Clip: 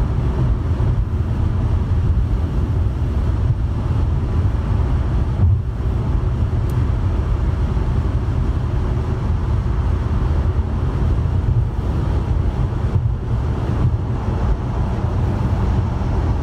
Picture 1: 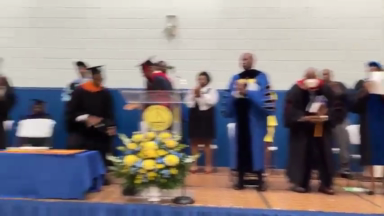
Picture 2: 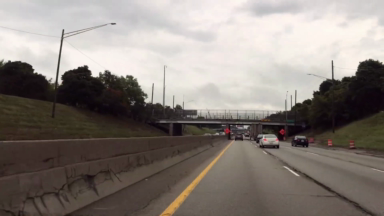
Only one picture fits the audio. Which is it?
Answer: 2